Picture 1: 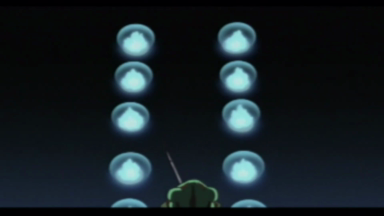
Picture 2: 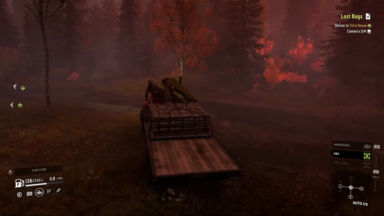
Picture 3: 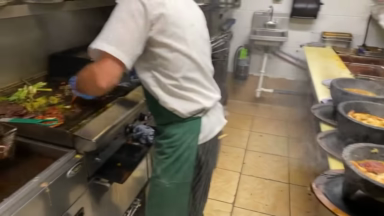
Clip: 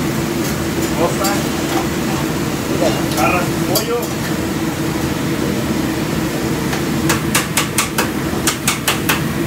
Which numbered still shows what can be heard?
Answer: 3